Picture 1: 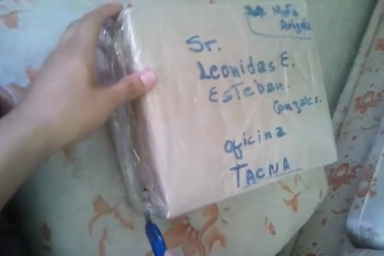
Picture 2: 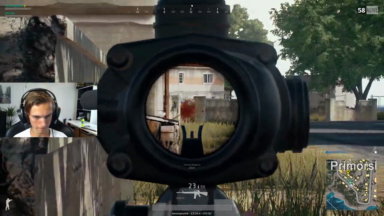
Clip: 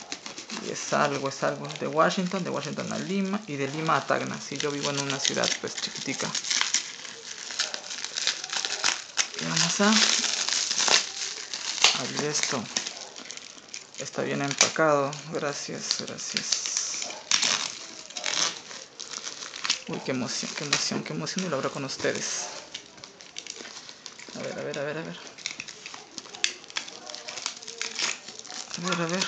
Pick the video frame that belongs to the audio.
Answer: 1